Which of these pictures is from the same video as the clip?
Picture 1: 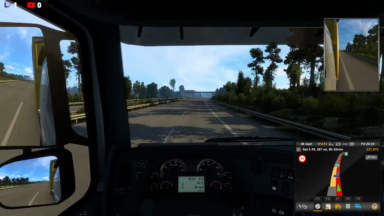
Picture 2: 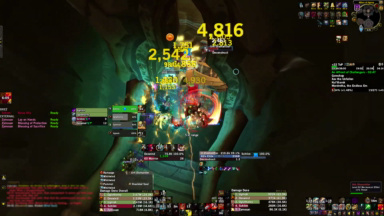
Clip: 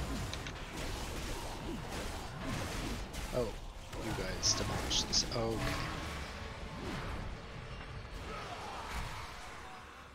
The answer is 2